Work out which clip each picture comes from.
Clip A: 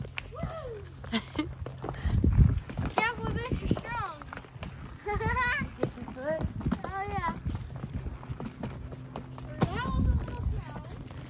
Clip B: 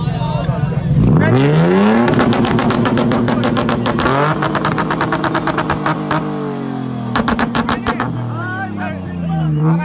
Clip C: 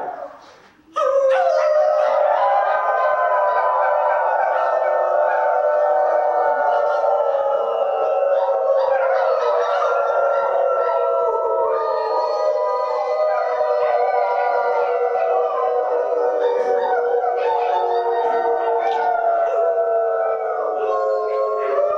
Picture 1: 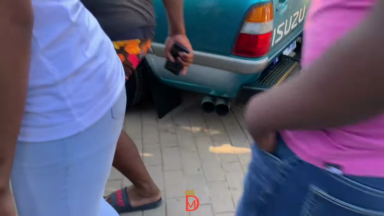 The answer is B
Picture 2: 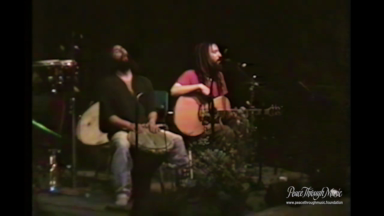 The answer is C